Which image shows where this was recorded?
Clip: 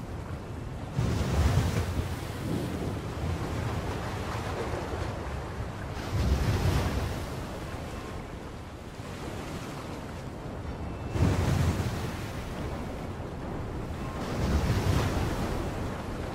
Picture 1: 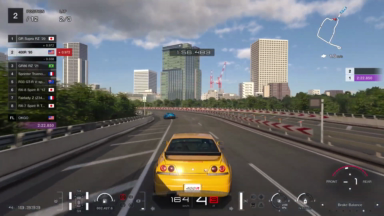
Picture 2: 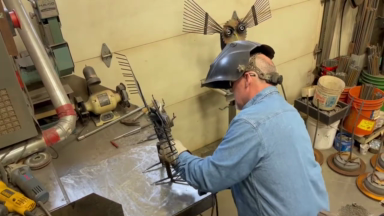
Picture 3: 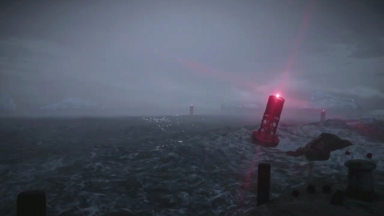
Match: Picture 3